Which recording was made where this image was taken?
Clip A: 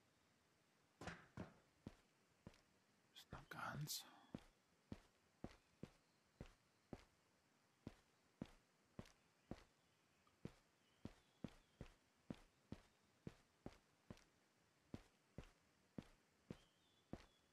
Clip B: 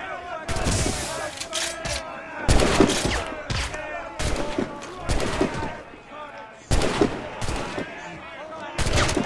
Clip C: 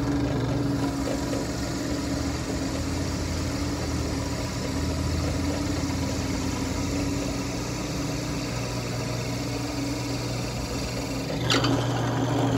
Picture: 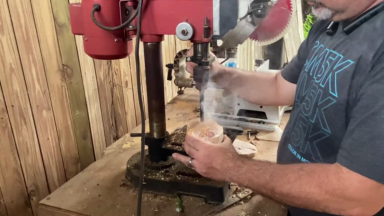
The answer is C